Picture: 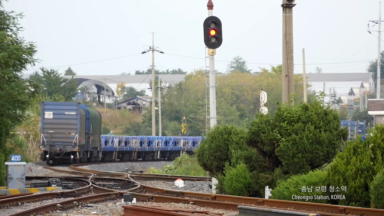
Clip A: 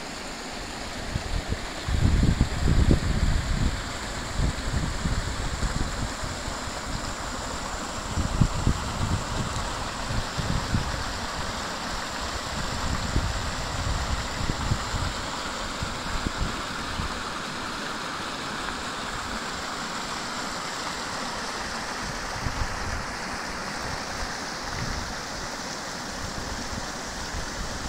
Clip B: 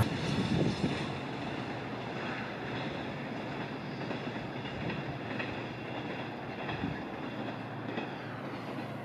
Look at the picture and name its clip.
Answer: B